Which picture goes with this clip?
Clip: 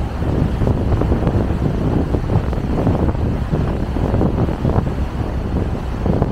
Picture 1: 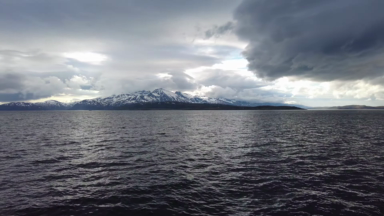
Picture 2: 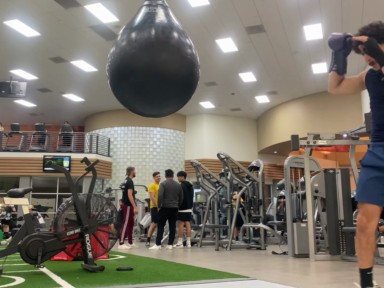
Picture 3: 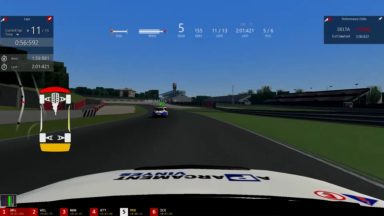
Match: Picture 1